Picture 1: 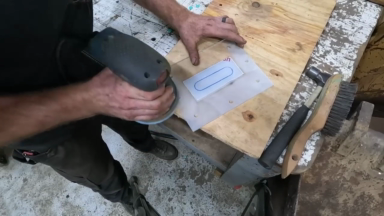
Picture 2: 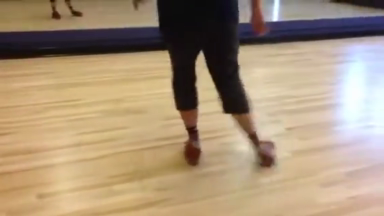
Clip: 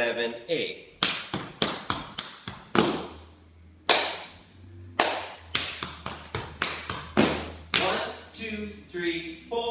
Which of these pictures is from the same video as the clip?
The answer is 2